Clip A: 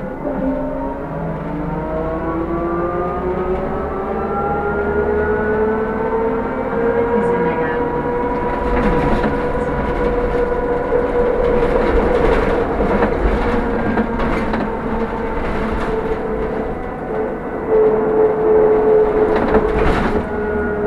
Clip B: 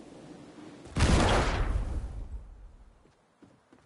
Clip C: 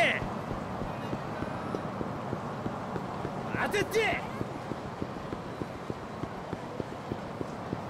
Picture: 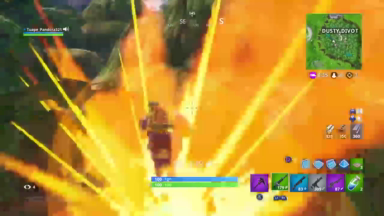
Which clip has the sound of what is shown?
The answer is B